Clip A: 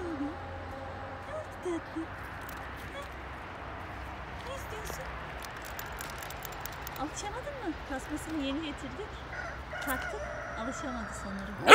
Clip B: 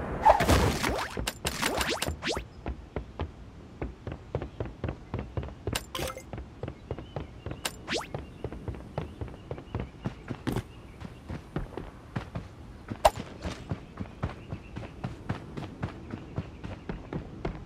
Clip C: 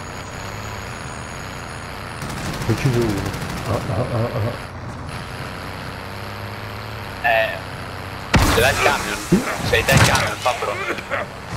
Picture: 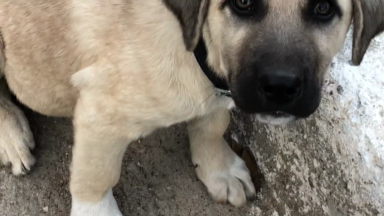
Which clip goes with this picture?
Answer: A